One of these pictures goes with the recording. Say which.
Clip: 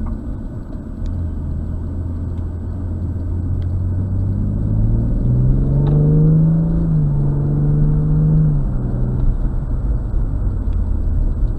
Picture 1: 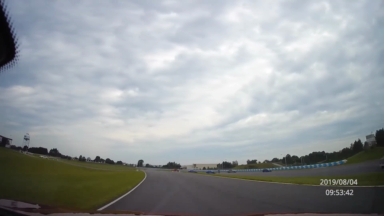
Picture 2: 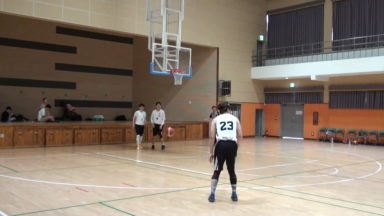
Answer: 1